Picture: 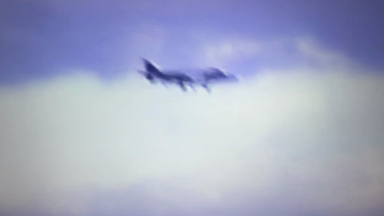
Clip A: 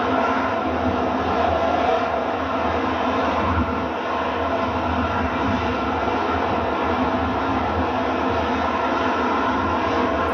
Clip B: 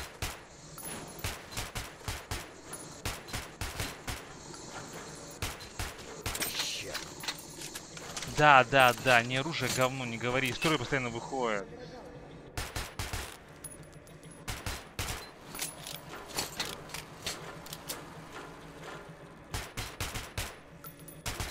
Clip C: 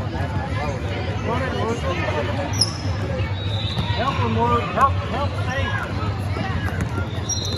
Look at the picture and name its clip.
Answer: A